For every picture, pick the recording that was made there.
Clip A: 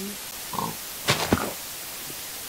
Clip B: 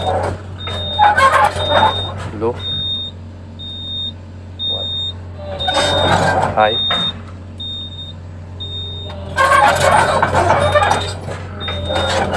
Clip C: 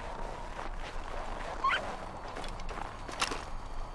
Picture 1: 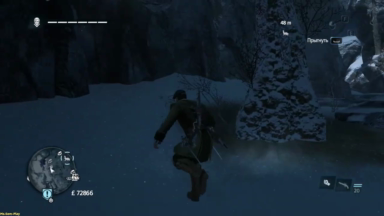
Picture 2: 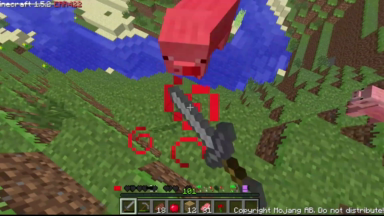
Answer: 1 C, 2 A